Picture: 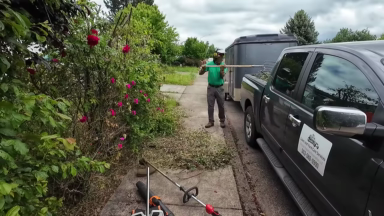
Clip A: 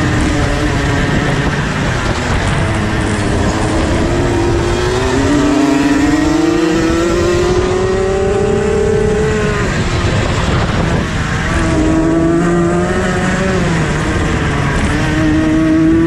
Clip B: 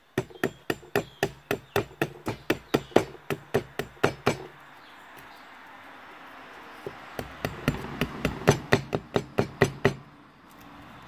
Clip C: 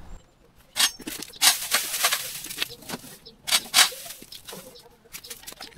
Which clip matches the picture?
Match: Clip C